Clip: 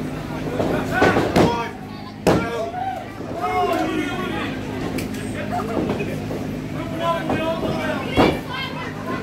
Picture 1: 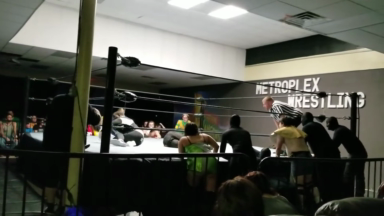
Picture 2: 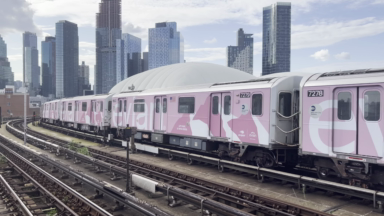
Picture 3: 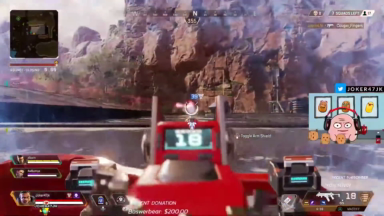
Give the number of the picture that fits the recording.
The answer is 1